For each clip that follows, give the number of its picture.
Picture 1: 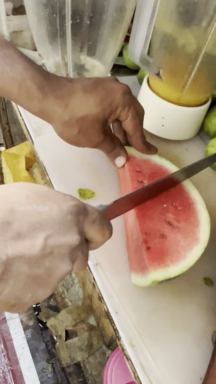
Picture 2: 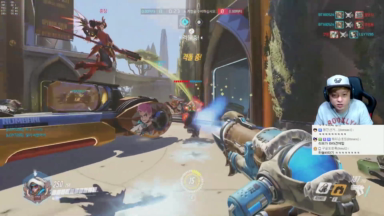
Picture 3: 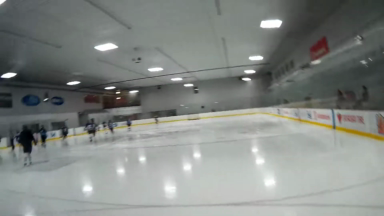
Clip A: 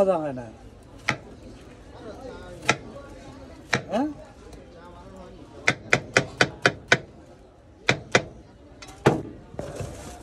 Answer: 1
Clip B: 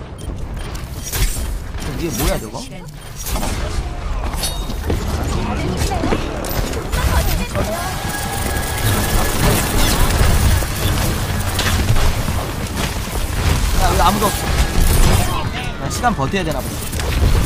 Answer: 2